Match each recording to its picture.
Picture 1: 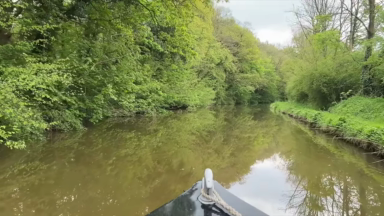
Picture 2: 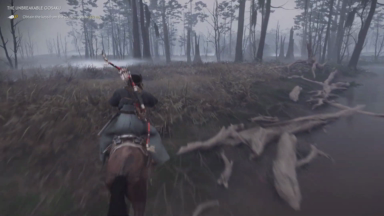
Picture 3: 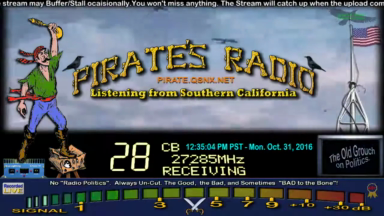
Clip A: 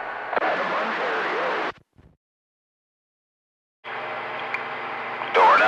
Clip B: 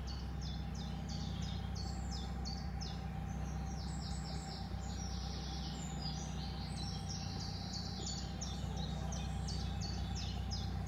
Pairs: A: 3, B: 1